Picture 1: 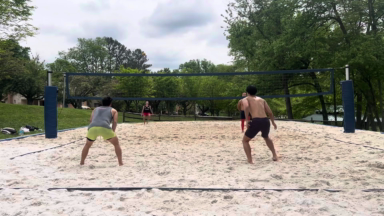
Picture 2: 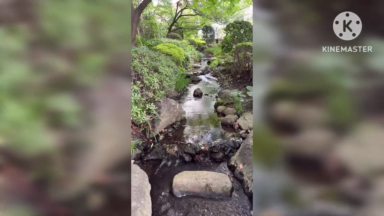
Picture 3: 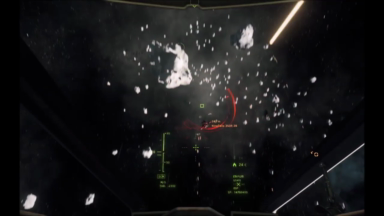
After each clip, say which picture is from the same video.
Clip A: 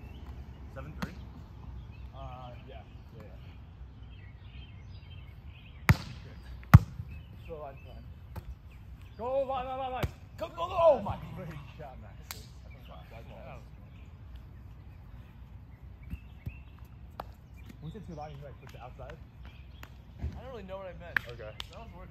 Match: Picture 1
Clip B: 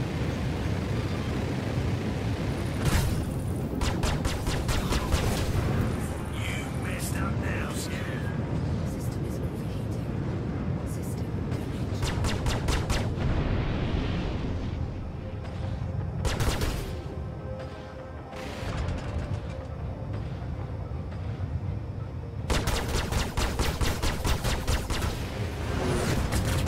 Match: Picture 3